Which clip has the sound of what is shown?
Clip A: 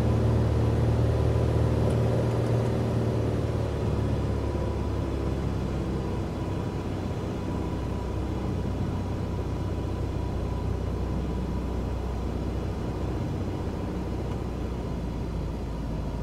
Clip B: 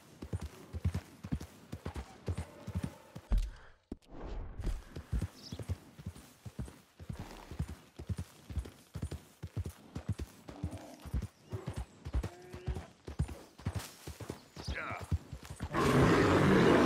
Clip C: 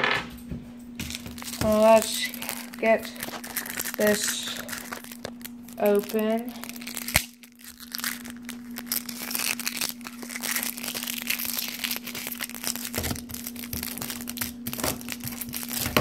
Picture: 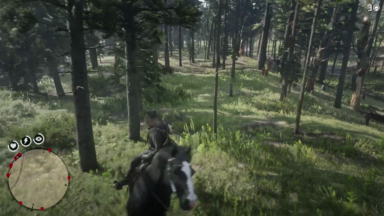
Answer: B